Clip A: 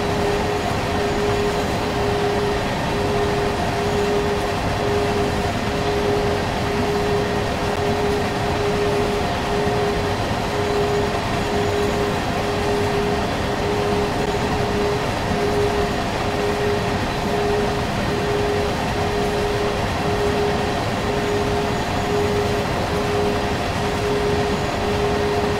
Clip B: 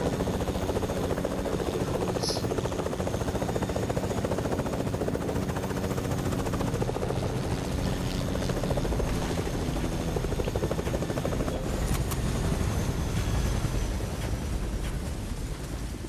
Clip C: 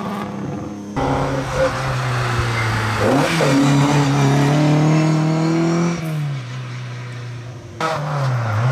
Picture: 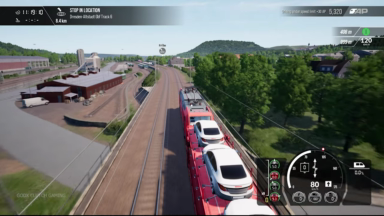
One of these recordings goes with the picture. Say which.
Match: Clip A